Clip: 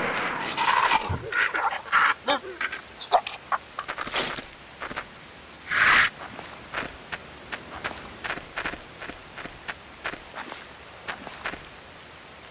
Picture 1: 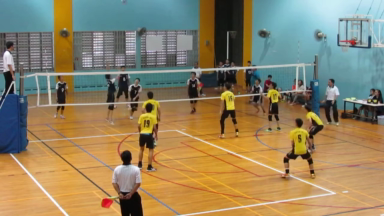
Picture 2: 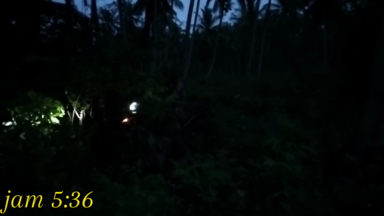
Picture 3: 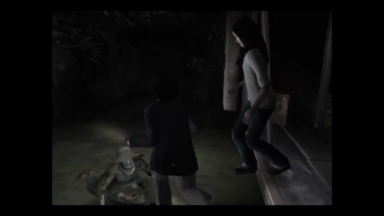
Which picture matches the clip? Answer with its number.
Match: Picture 3